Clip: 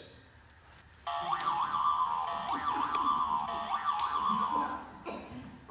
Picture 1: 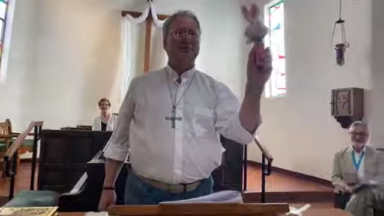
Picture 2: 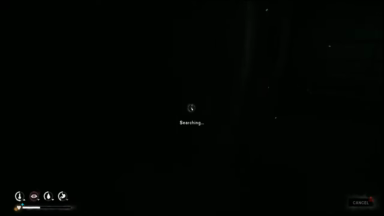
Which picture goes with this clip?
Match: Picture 1